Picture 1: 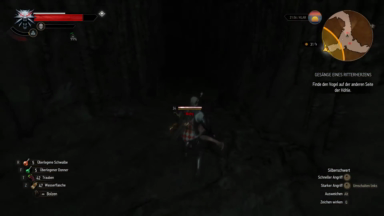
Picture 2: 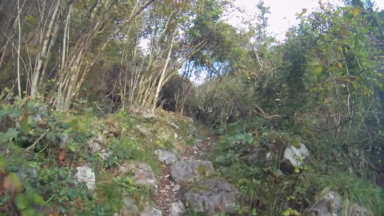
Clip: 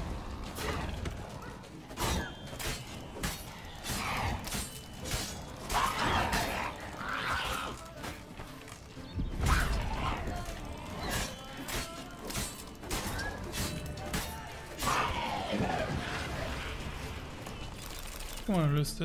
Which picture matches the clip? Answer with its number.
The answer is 1